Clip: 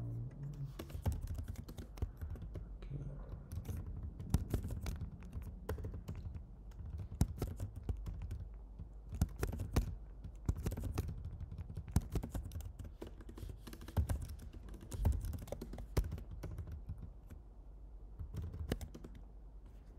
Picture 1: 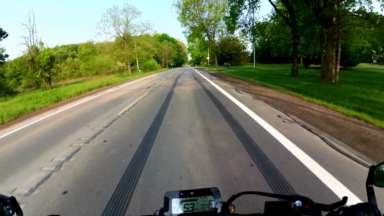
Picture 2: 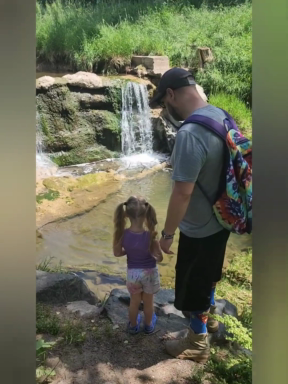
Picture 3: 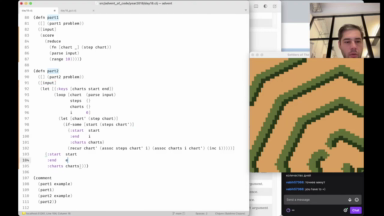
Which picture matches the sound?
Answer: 3